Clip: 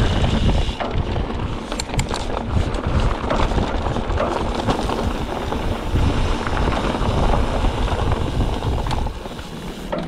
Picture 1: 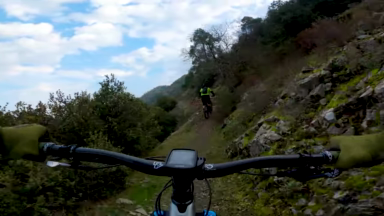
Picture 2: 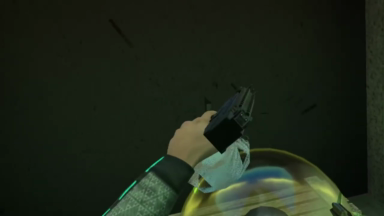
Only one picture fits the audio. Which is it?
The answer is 1